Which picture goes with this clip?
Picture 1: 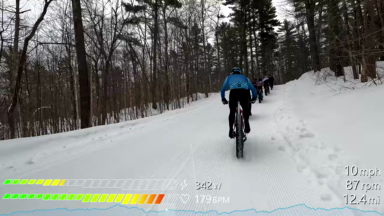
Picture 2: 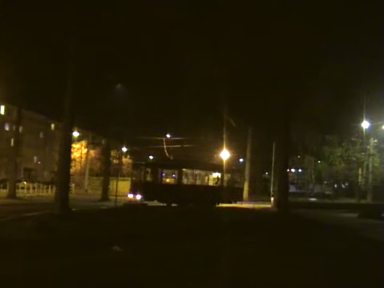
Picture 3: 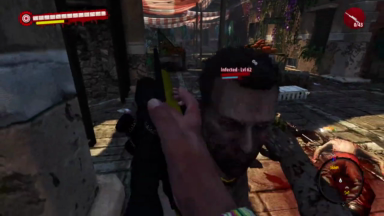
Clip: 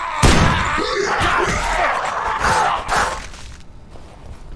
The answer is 3